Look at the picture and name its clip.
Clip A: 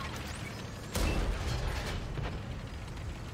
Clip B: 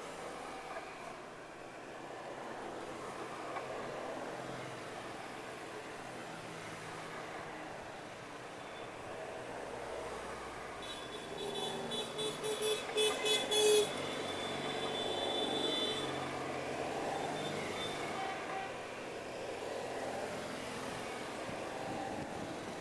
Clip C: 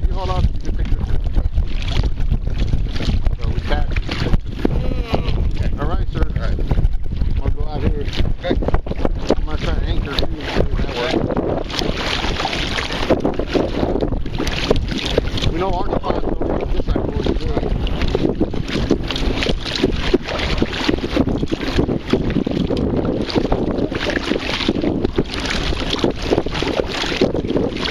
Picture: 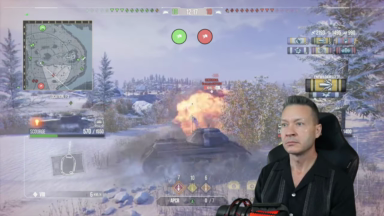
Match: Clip A